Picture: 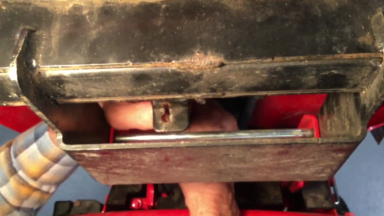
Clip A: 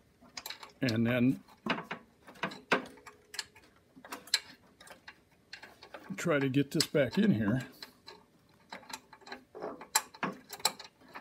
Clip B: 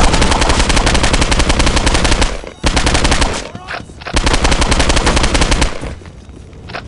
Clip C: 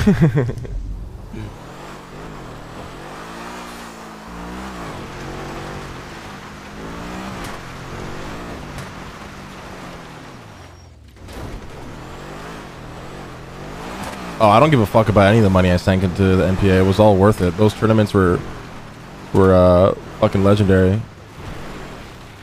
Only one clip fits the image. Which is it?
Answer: A